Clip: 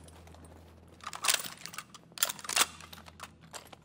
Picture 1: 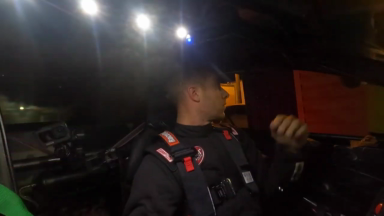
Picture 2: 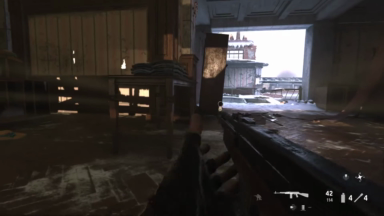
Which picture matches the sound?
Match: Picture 2